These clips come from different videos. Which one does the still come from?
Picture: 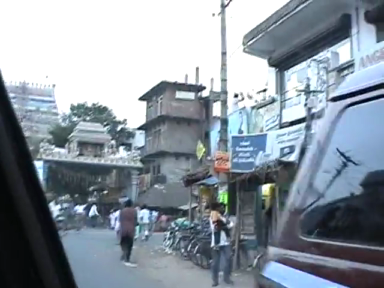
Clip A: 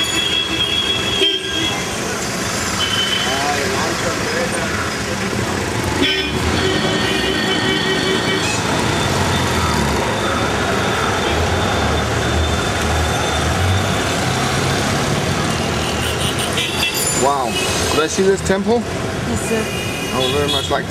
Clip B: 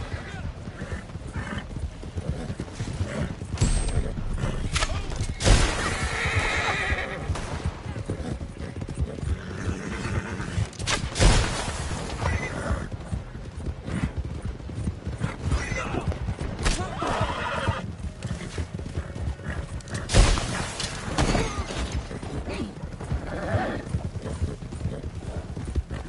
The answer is A